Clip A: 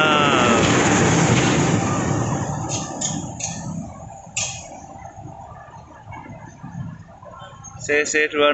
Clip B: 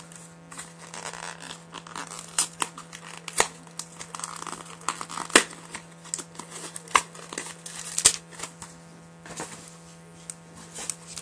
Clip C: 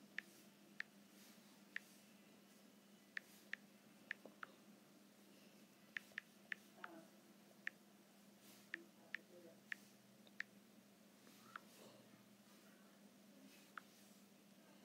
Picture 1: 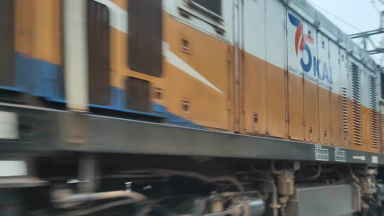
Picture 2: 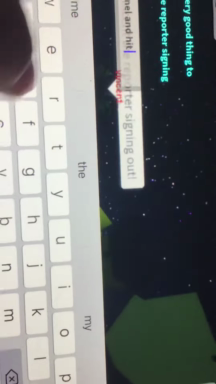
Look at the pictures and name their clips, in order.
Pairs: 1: A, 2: C